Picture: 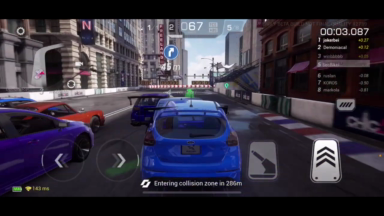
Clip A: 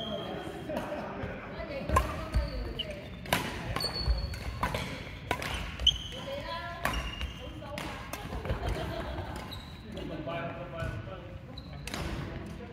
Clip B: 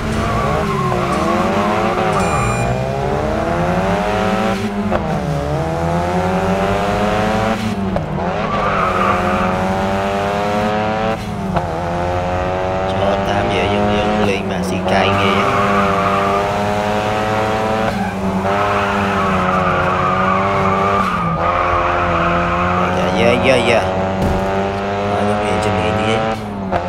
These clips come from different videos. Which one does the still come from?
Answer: B